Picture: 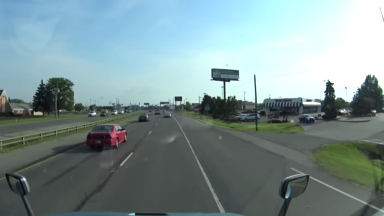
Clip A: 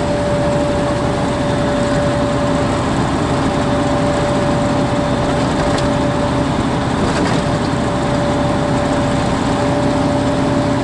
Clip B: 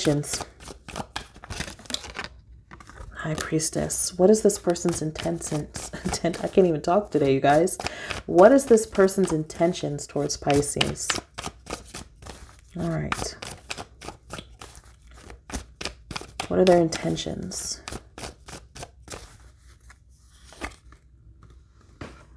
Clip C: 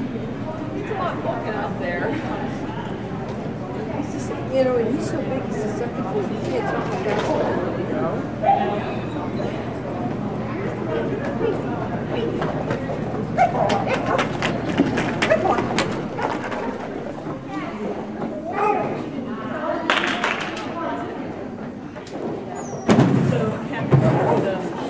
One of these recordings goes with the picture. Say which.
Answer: A